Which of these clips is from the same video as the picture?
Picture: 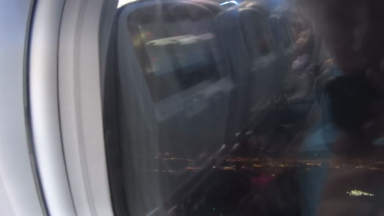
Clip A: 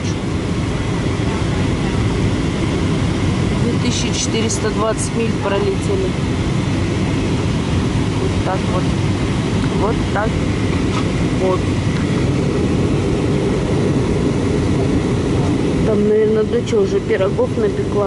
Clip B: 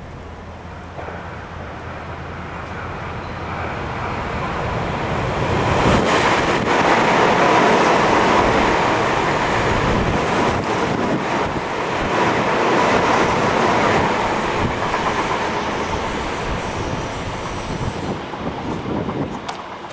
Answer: A